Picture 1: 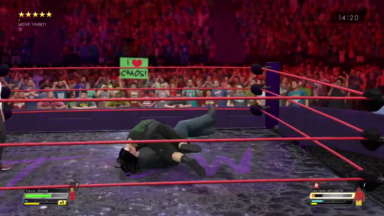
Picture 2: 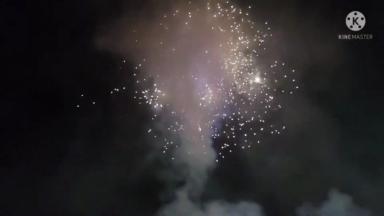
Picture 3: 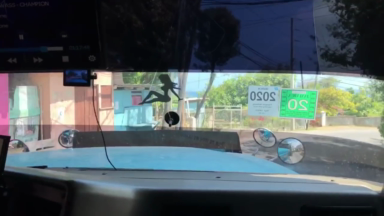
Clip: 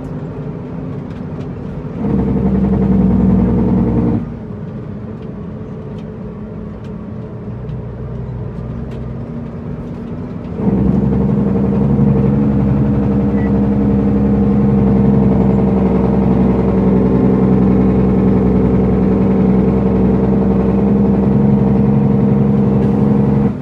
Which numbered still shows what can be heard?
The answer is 3